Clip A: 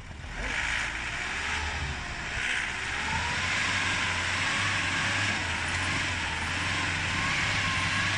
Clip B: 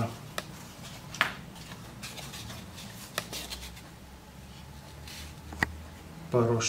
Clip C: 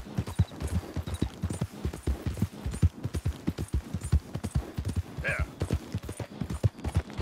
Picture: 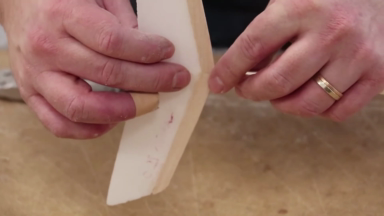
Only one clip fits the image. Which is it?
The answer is B